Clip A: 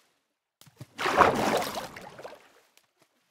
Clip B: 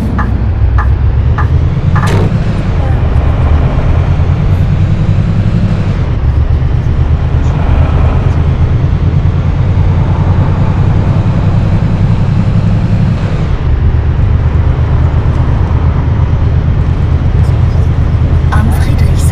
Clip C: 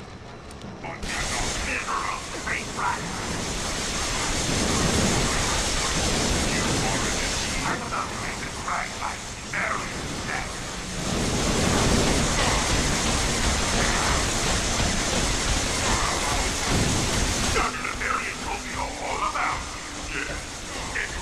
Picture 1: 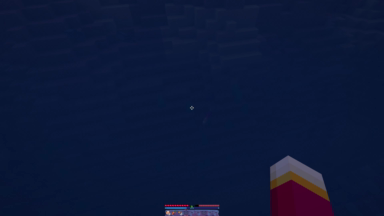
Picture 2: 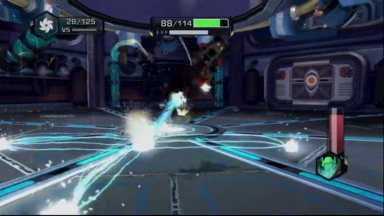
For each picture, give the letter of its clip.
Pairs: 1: A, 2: C